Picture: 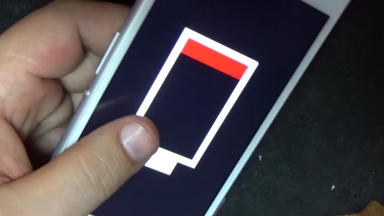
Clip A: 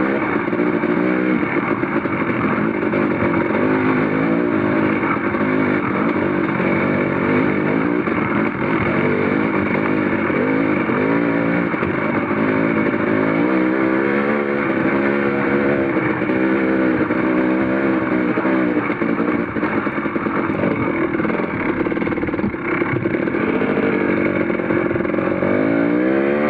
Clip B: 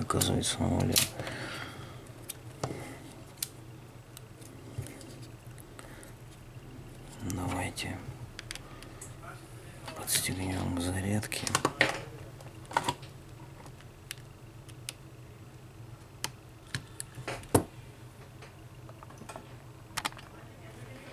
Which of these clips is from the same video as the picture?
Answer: B